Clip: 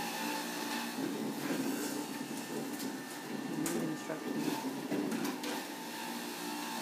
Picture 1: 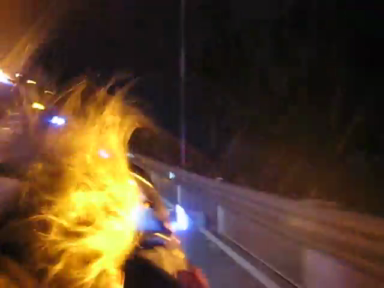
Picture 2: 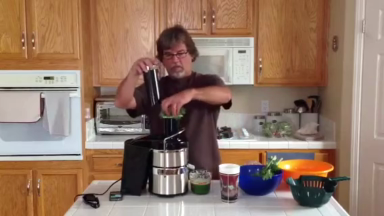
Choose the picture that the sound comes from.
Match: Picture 2